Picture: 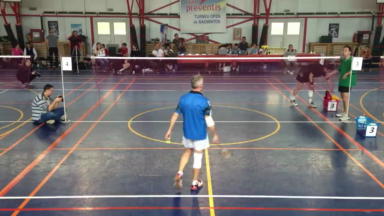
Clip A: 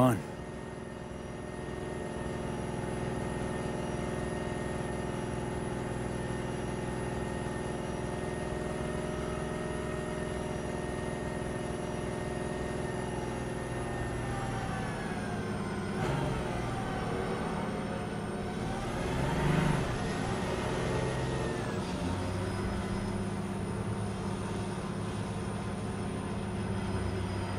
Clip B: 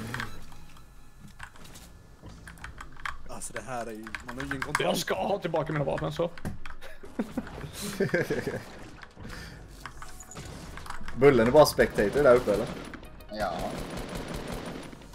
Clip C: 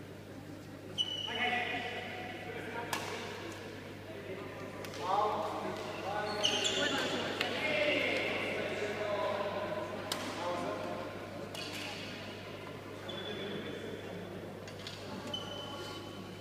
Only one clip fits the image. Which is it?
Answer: C